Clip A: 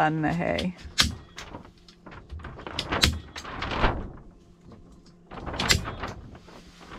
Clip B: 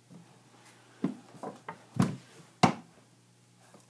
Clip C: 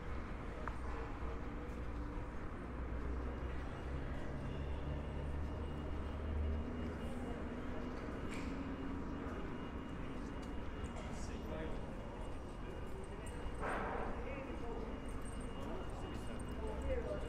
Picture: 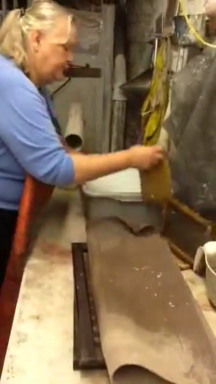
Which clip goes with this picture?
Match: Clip B